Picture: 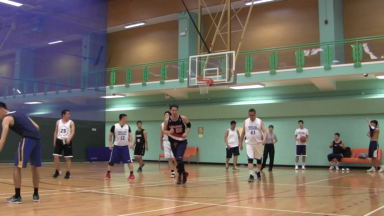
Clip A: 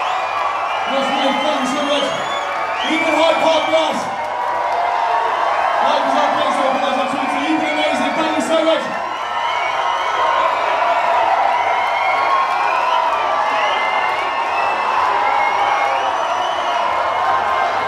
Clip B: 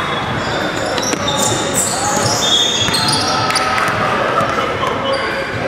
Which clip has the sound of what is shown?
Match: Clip B